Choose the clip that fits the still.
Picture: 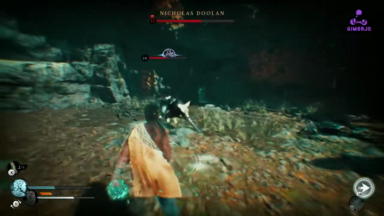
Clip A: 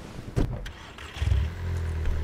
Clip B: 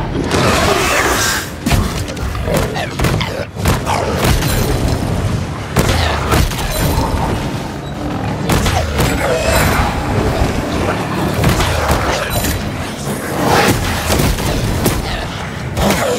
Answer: B